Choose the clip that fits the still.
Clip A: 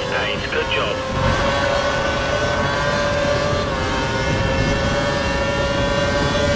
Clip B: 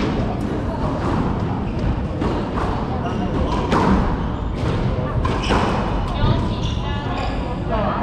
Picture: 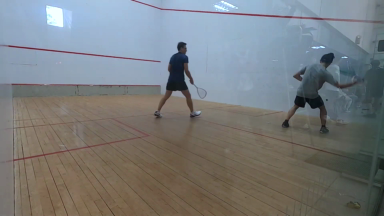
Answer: B